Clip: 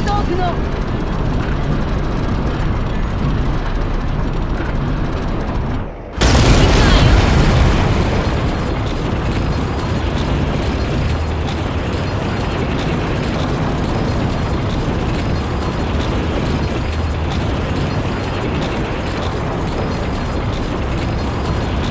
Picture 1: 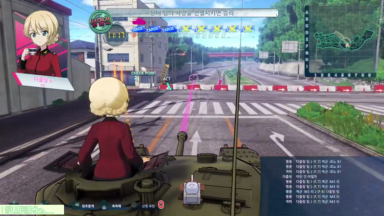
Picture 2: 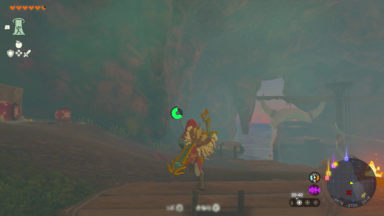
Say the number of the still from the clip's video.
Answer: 1